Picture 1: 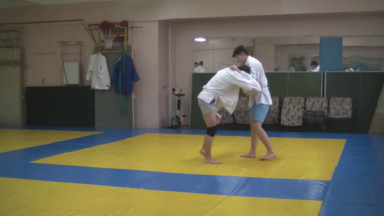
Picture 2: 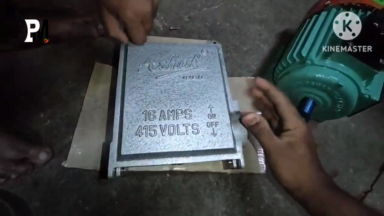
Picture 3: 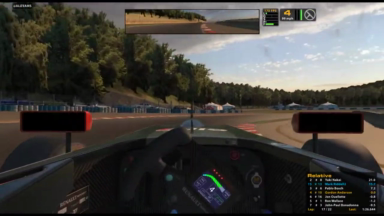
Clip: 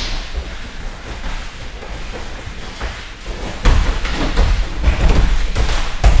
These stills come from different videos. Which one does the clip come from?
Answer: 1